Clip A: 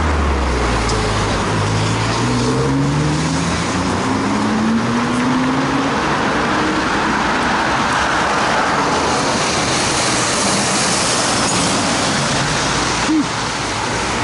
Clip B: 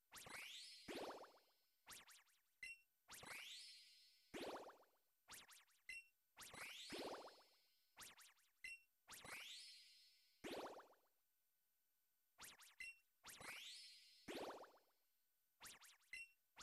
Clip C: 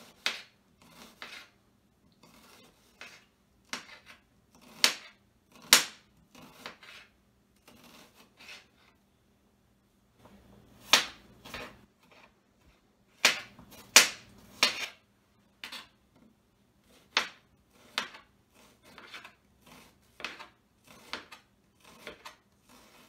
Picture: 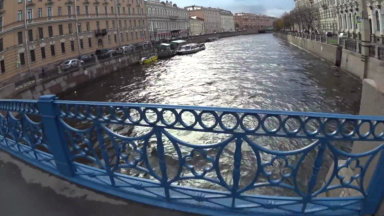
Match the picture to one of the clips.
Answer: A